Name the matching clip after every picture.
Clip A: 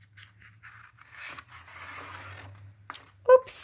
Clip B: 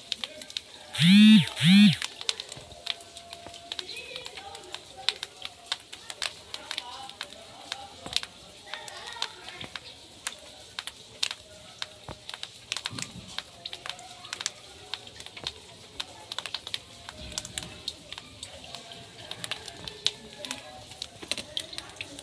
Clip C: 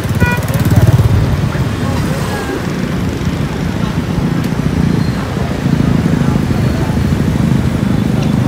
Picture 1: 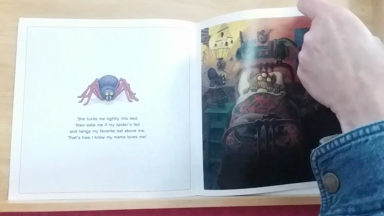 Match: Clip A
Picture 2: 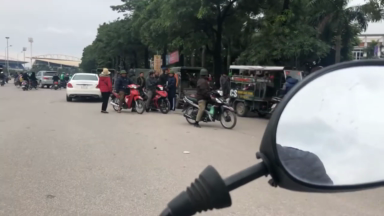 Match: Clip C